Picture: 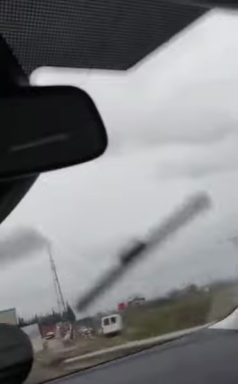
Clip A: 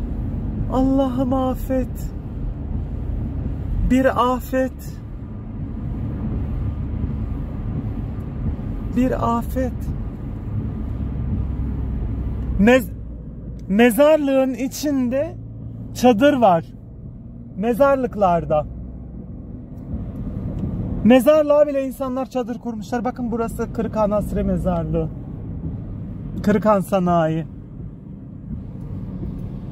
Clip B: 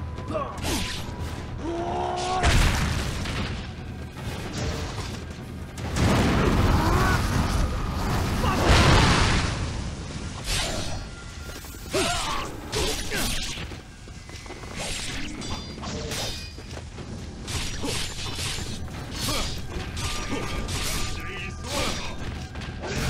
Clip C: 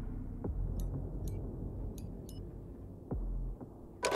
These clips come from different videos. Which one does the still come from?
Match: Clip A